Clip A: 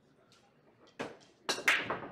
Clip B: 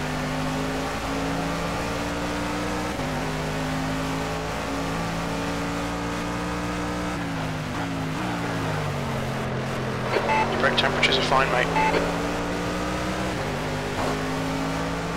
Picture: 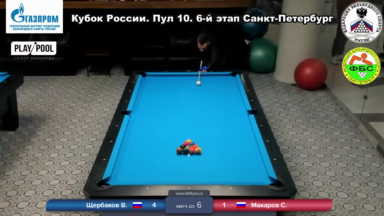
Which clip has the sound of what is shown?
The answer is A